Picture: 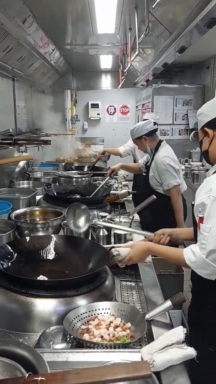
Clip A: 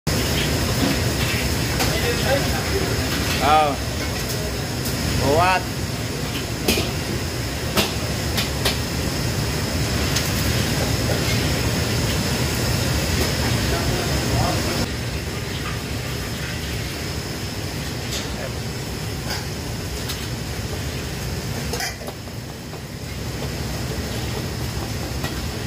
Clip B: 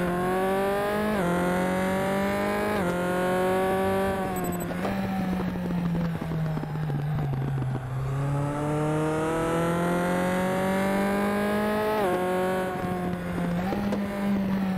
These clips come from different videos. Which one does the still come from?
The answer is A